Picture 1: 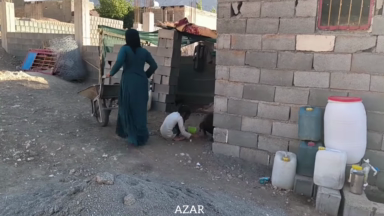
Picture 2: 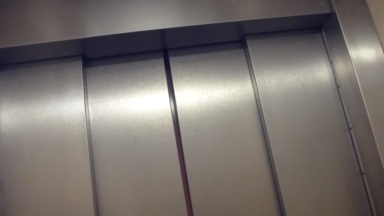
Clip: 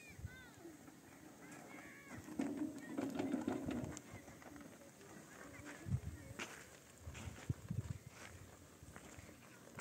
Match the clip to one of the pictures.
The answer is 1